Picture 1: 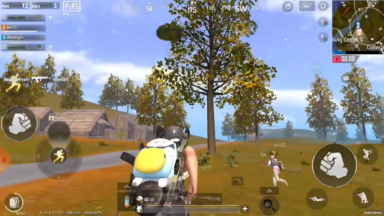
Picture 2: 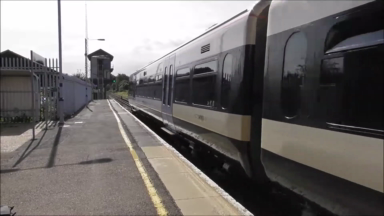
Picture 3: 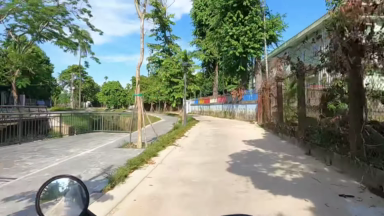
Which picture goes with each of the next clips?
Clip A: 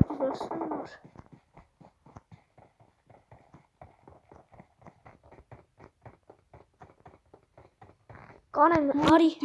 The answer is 1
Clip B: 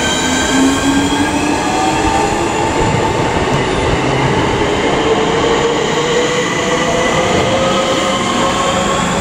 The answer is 2